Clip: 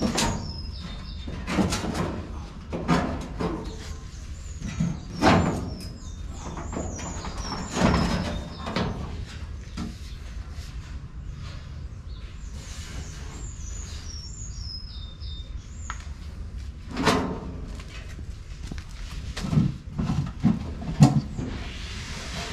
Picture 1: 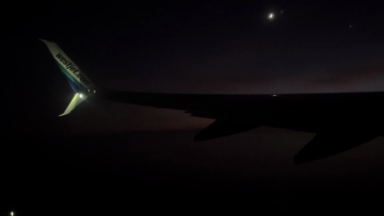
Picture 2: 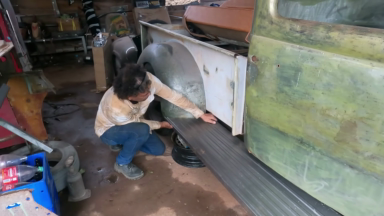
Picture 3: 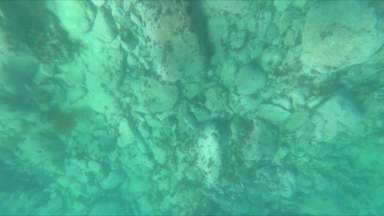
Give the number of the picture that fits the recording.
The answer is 2